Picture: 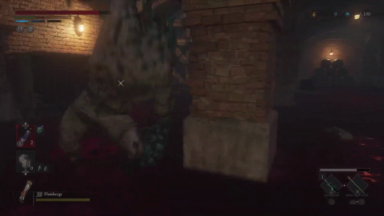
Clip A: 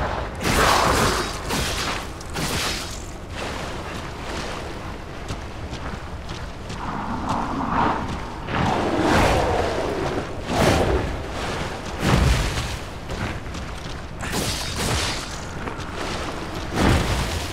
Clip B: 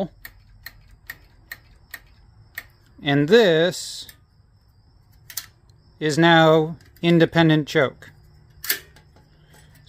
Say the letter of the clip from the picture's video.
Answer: A